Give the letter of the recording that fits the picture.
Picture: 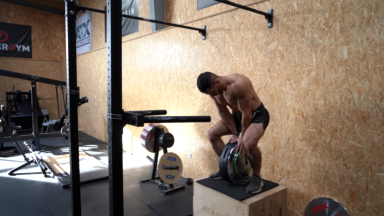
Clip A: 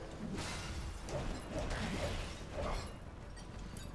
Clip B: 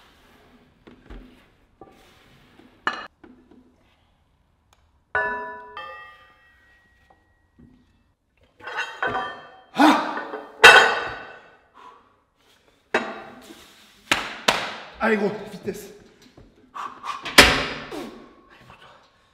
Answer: B